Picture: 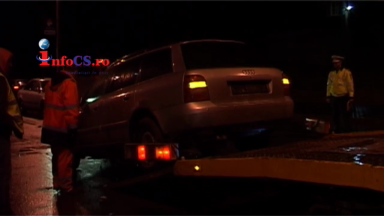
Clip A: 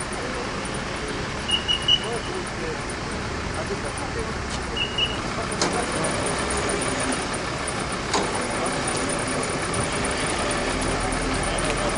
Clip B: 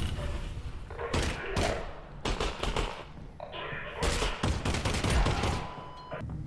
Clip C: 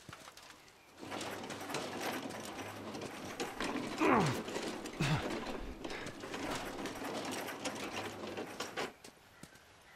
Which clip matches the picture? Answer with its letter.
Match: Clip A